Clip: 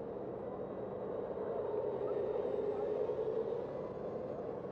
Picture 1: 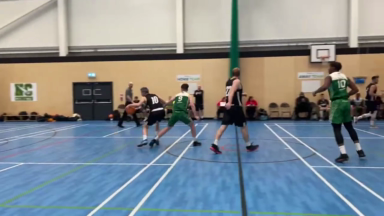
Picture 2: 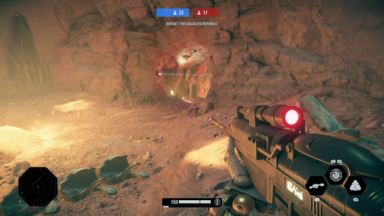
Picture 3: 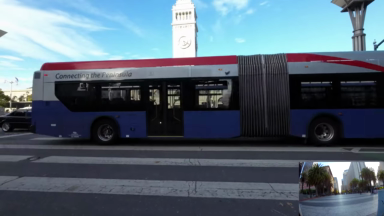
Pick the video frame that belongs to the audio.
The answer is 3